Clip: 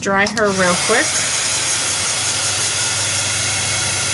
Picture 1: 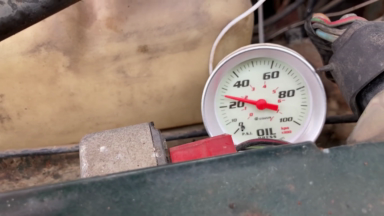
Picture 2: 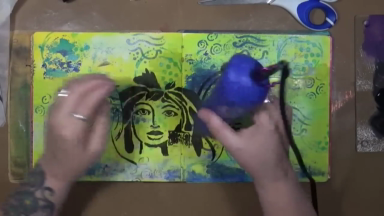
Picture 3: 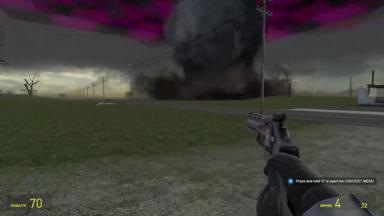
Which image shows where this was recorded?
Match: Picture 2